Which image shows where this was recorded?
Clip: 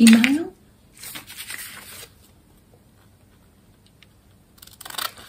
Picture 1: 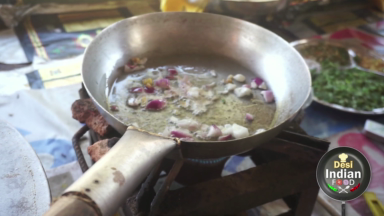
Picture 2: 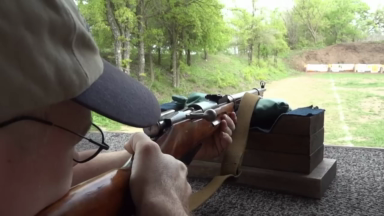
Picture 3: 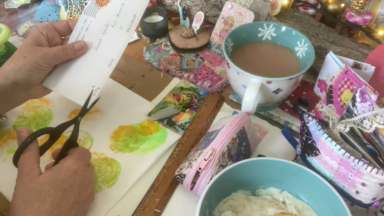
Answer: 3